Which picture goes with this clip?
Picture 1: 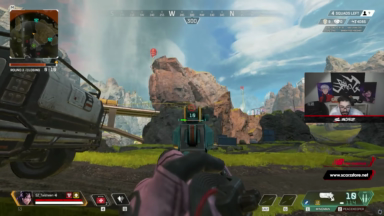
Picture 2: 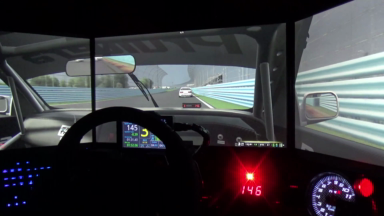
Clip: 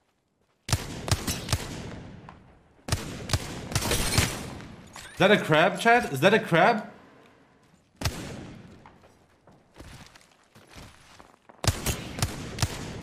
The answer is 1